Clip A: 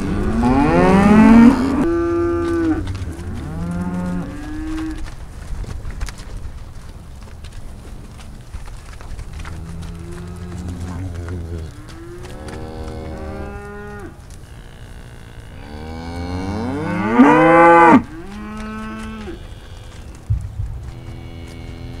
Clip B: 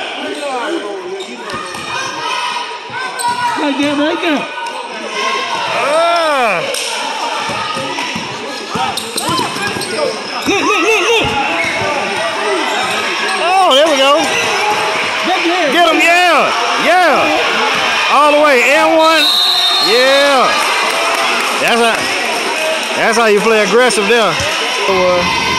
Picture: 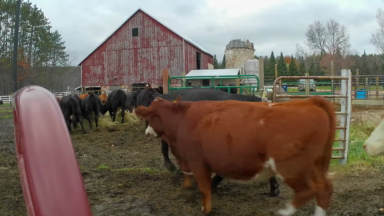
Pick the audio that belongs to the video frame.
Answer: A